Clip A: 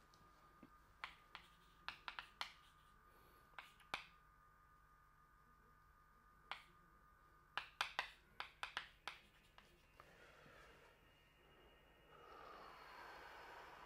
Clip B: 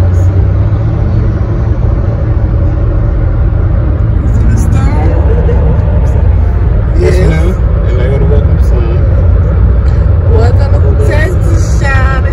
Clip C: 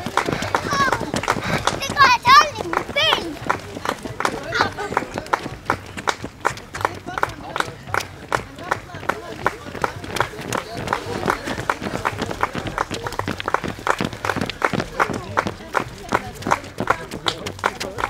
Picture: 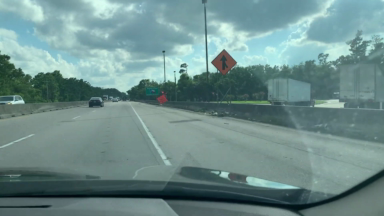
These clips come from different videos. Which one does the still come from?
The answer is B